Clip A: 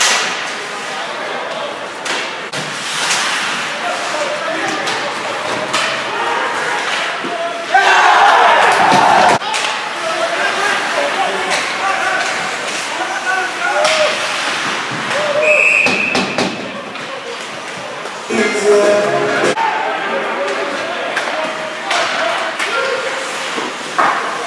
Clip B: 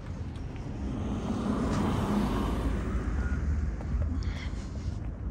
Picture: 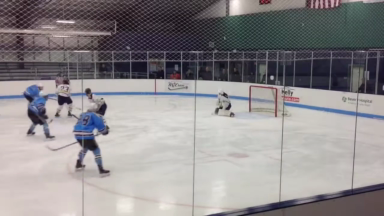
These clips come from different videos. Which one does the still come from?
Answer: A